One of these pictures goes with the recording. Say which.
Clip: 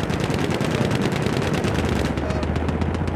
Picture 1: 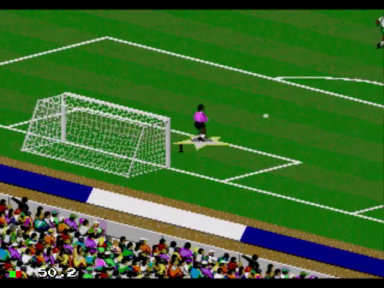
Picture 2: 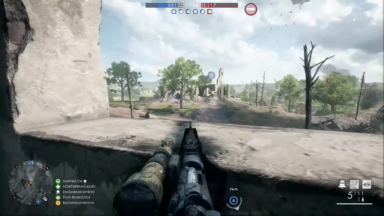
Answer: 2